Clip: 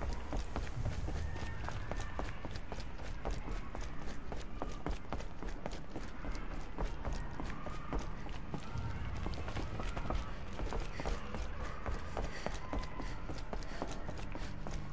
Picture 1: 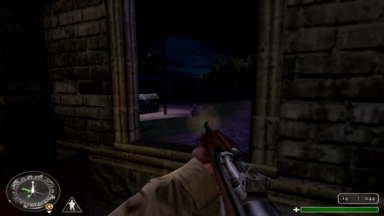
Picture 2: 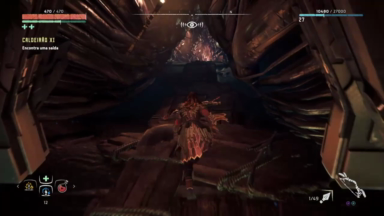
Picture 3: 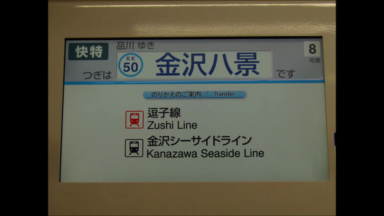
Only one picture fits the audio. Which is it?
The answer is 2